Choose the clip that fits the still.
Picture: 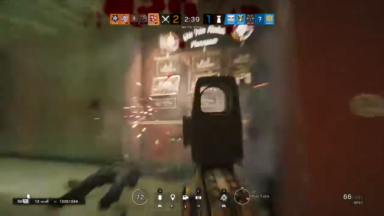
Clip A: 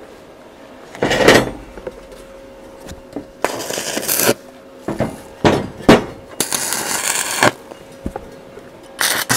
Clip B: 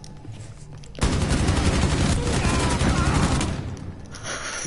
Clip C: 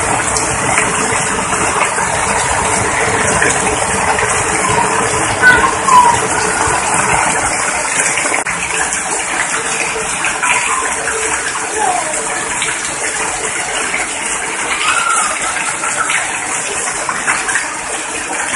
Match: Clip B